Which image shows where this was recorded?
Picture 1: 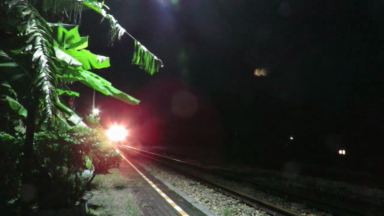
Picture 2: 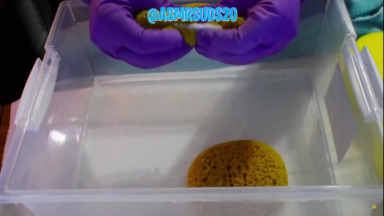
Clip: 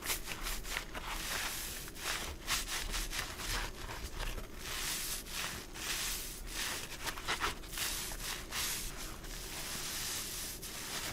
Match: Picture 2